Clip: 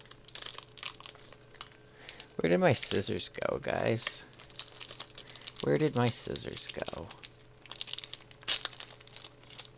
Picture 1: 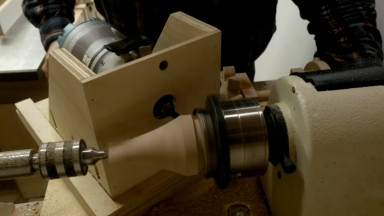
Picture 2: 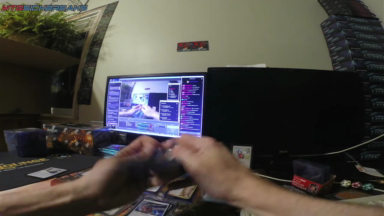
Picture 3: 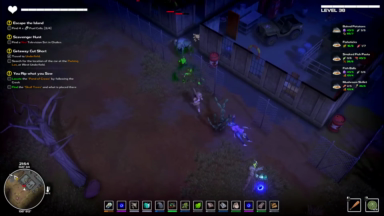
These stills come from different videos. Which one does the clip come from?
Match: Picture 2